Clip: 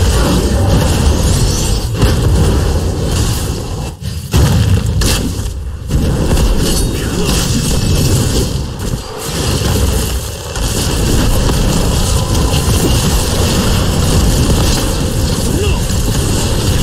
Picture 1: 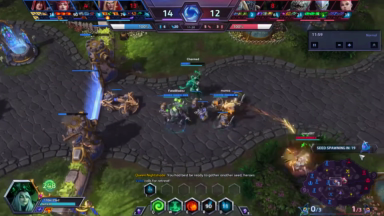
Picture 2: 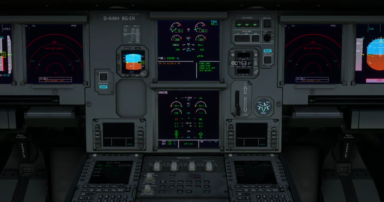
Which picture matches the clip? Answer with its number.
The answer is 1